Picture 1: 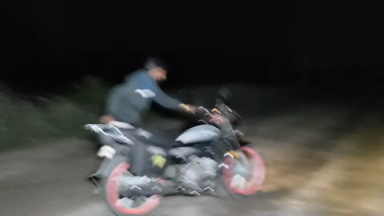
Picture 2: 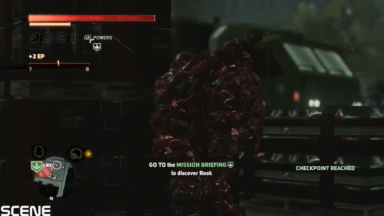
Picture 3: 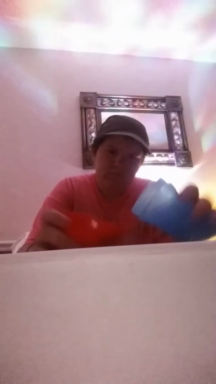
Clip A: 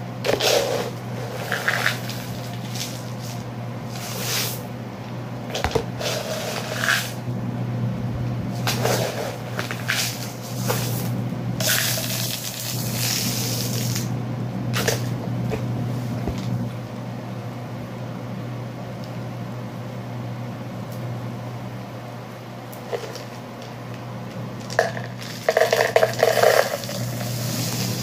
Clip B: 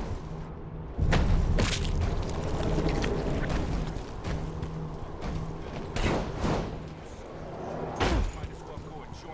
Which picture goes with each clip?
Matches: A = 3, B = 2